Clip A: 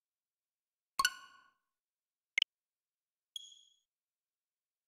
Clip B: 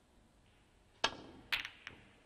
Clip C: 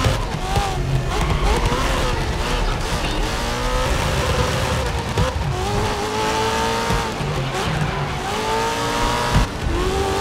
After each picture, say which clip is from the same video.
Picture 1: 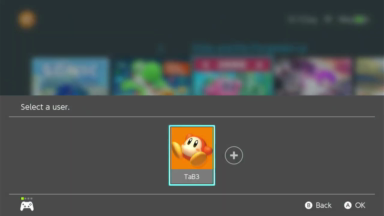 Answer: A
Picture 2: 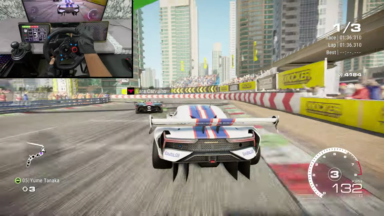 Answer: C